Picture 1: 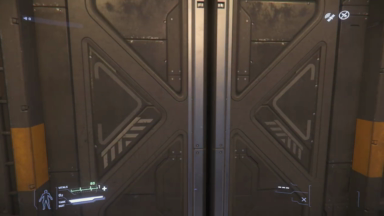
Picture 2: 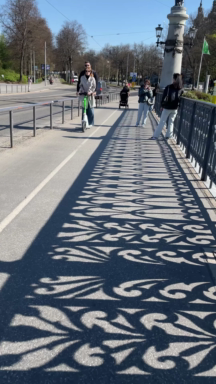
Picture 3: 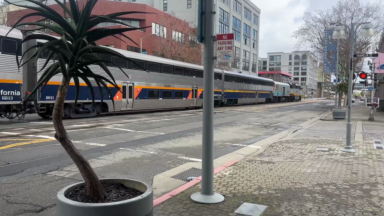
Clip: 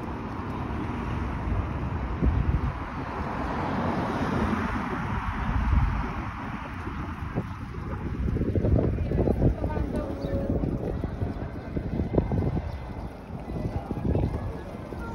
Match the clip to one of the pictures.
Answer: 2